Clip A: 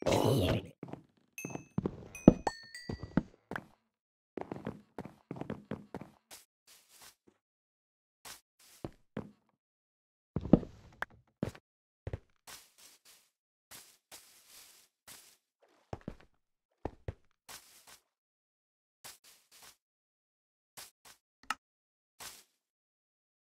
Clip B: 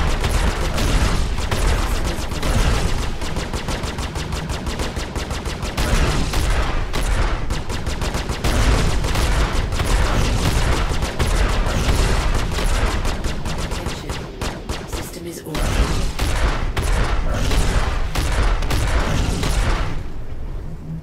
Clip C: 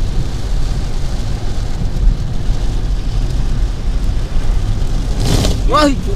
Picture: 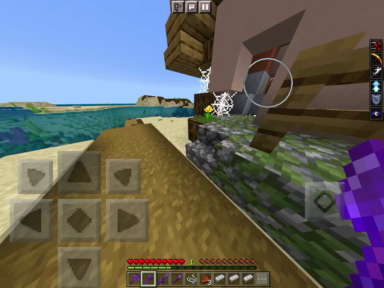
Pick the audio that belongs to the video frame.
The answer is A